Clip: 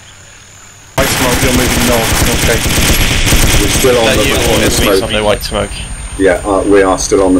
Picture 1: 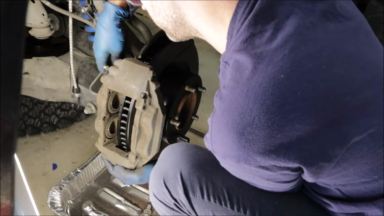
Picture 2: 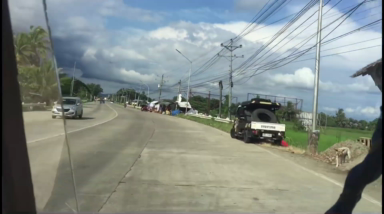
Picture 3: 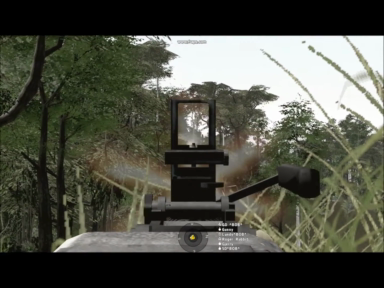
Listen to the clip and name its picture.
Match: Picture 3